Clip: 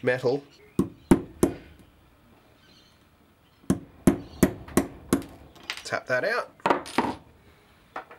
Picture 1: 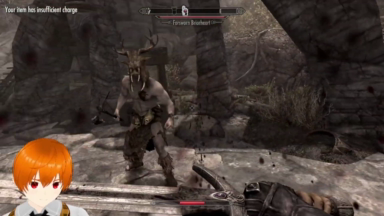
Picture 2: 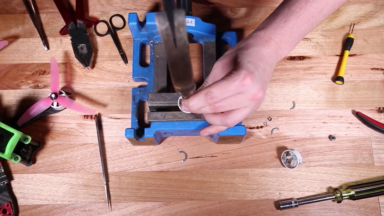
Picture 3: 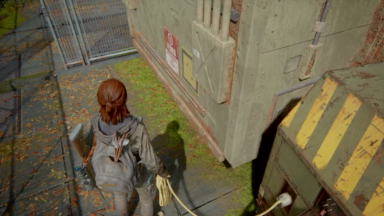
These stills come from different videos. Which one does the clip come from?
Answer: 2